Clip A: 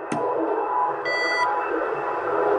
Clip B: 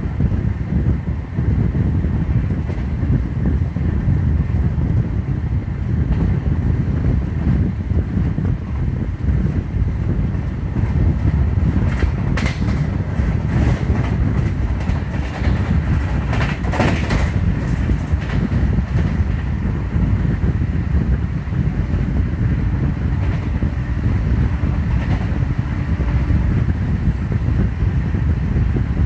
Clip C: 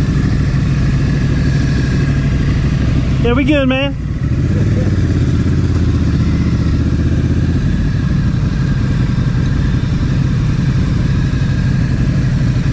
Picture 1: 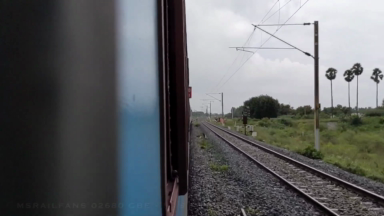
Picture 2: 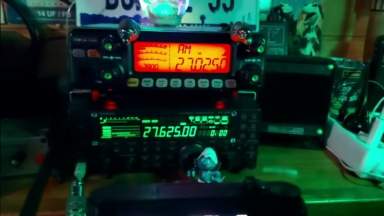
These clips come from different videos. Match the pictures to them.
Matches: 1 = B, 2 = A